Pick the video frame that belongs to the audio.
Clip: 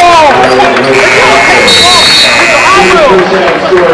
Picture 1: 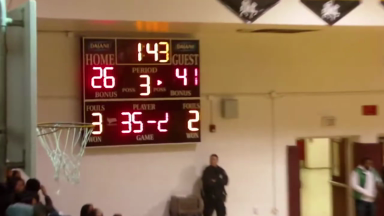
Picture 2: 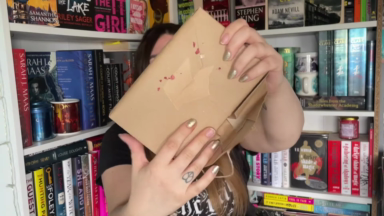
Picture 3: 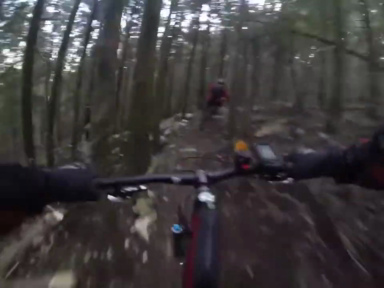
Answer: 1